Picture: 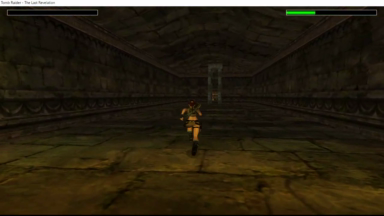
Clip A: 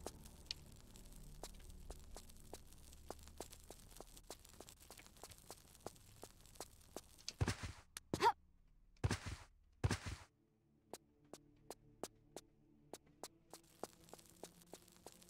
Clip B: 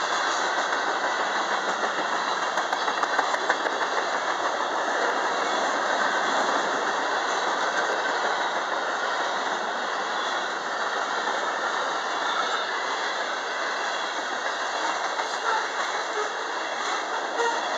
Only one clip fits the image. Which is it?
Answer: A